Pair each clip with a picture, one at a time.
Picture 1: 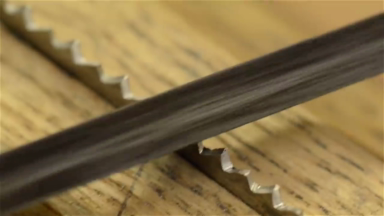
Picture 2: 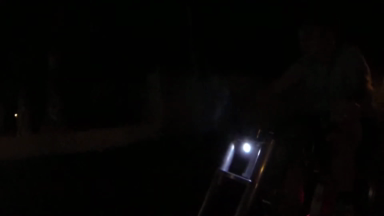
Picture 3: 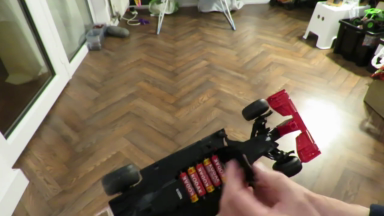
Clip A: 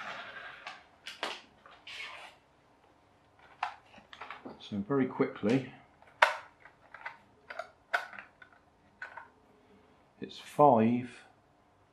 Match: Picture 3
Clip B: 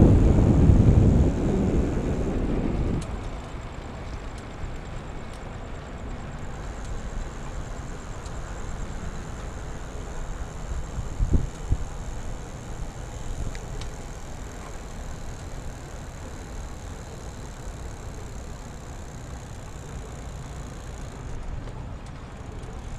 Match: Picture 2